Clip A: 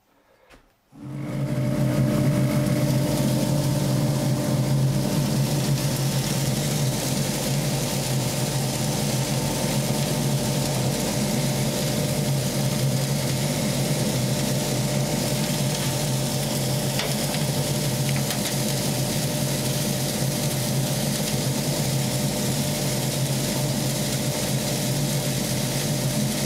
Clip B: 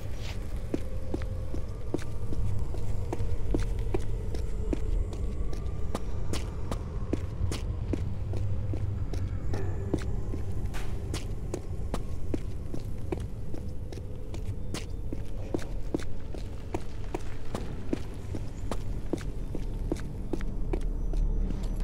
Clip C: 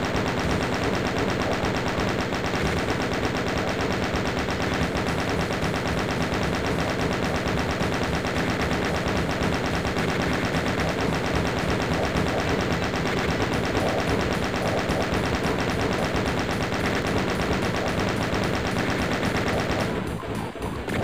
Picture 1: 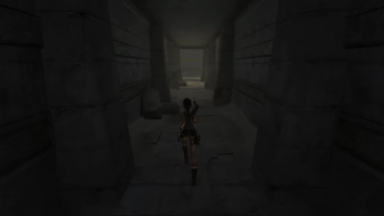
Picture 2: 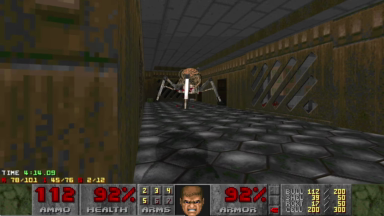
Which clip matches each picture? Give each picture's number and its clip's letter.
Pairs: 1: B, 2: C